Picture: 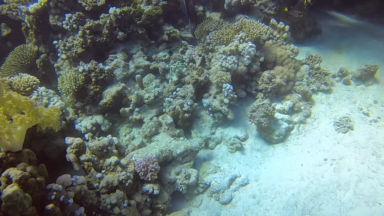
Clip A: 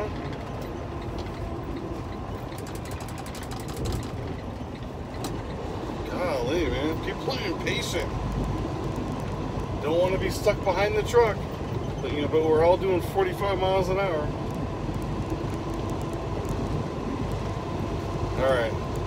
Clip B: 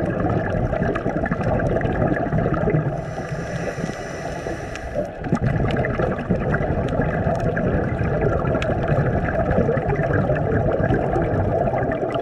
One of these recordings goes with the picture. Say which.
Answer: B